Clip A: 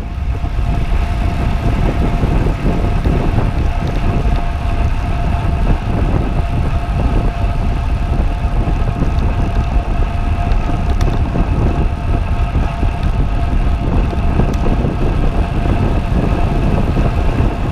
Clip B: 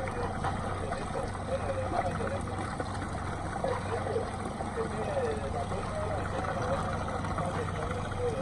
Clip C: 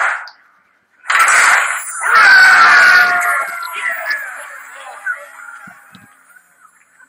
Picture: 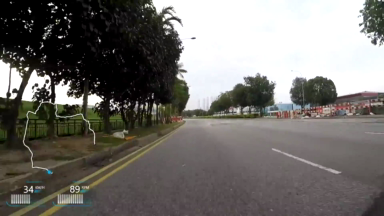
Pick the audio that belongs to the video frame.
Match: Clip A